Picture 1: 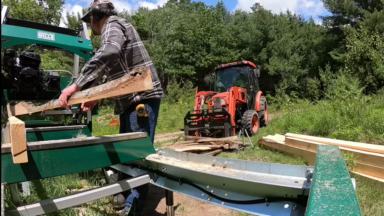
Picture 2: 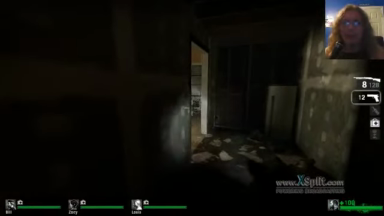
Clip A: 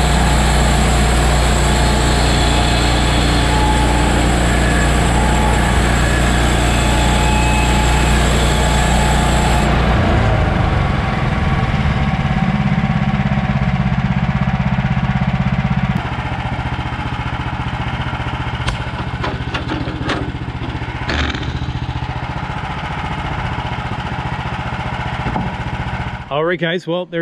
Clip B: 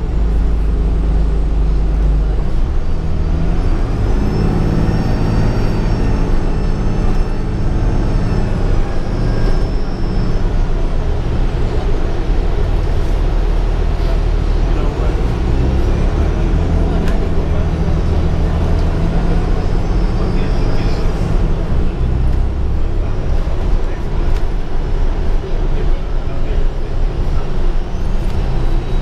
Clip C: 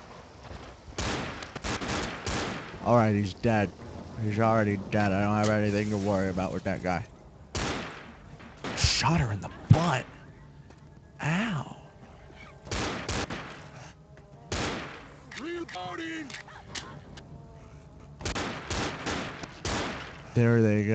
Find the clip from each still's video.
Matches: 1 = A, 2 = C